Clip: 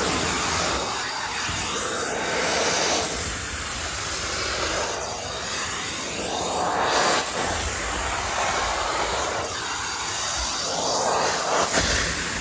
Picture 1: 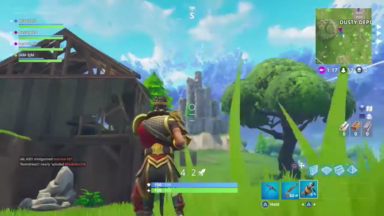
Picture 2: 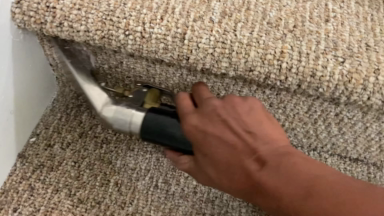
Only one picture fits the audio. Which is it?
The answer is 2